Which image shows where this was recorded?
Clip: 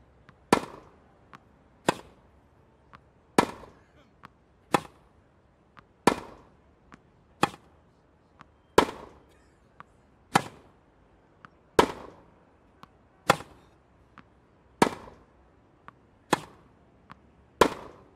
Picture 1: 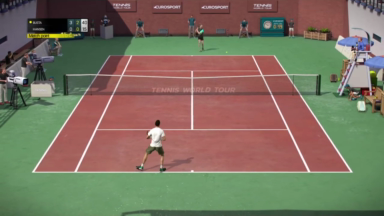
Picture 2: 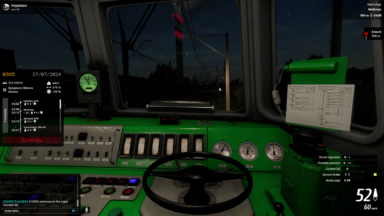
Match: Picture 1